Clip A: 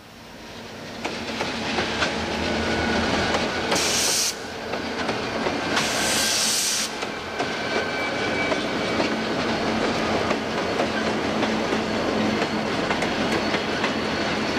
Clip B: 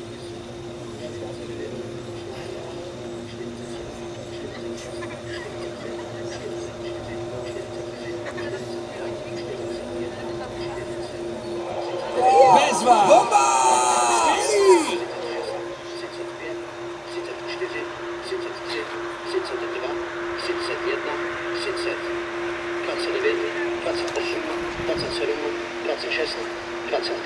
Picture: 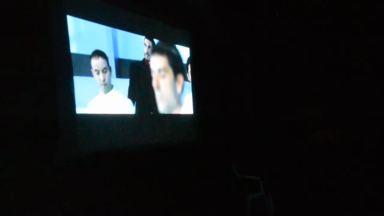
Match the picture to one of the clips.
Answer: B